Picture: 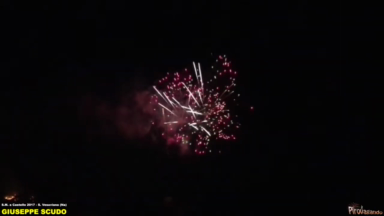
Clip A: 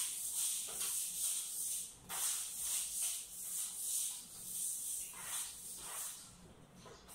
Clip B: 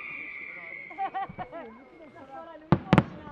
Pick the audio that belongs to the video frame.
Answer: B